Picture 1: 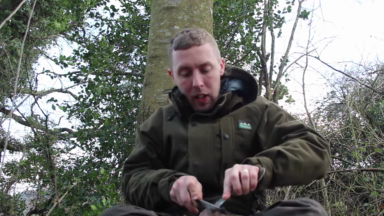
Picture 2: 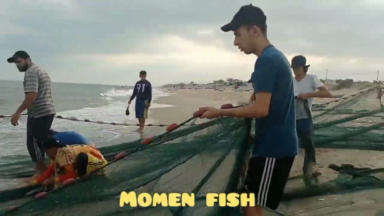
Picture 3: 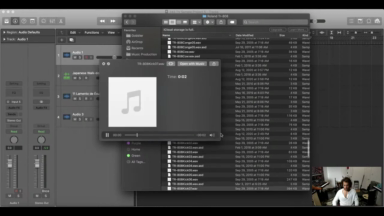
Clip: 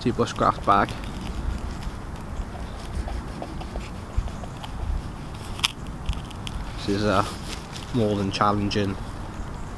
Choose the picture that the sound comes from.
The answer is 1